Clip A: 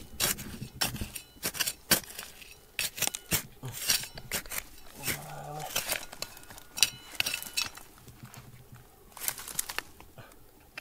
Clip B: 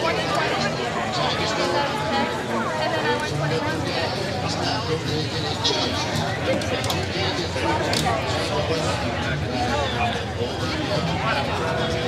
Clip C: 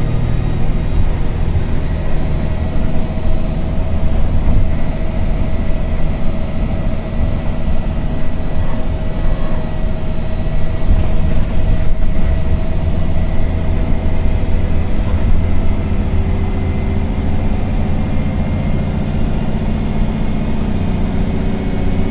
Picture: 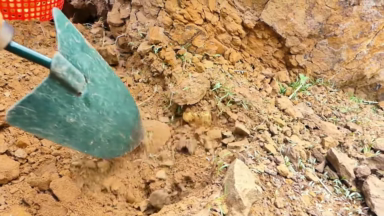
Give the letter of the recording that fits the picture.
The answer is A